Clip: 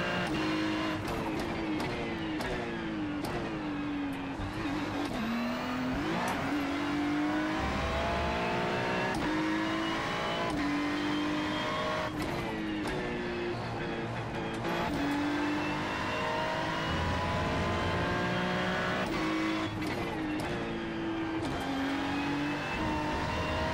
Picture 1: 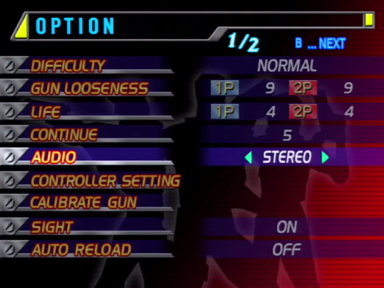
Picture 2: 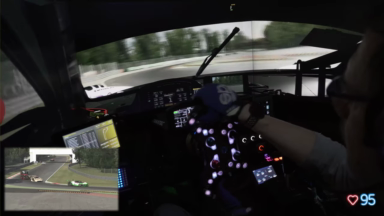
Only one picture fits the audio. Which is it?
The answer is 2